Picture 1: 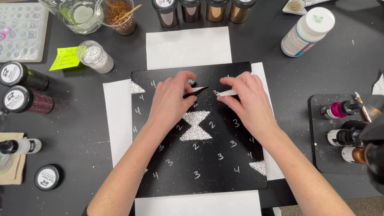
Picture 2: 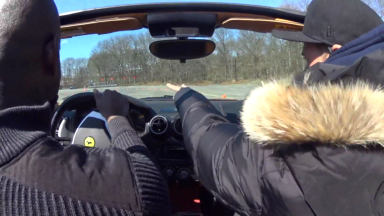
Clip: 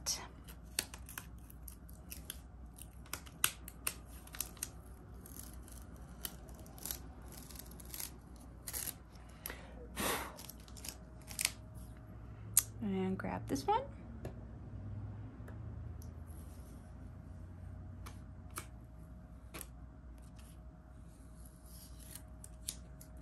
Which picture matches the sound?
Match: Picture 1